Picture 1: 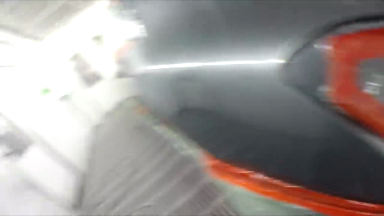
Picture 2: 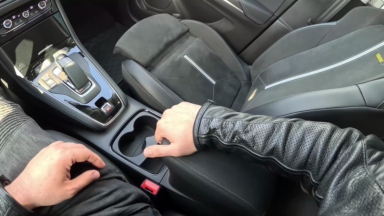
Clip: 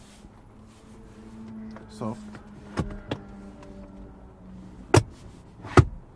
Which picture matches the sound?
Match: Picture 2